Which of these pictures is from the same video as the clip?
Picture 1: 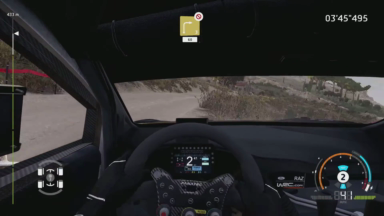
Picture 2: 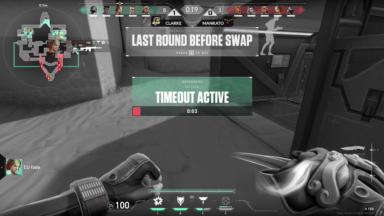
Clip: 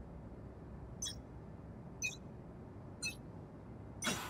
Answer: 2